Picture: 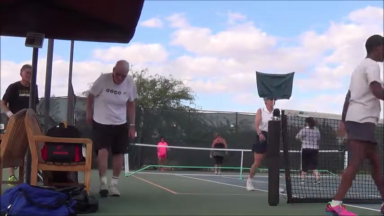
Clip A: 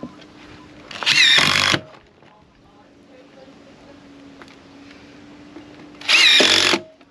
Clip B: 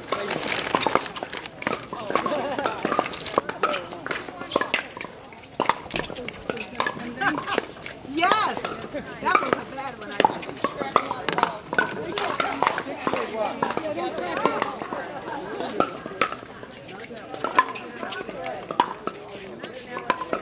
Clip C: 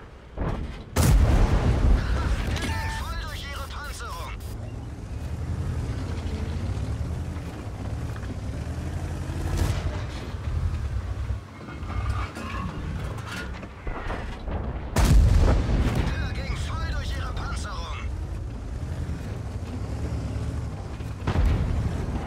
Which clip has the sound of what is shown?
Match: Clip B